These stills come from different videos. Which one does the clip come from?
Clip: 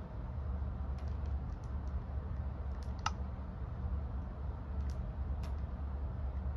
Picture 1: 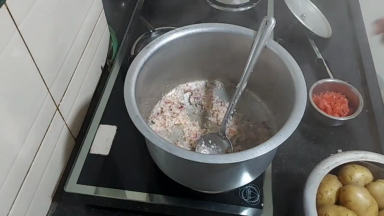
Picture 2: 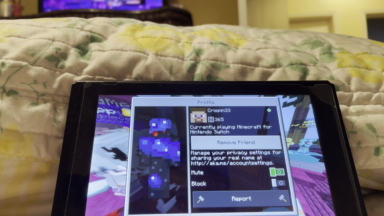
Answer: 2